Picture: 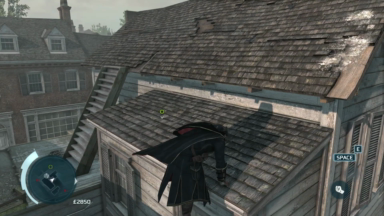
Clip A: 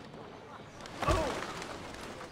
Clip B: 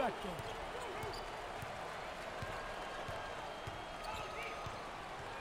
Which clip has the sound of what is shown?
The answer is A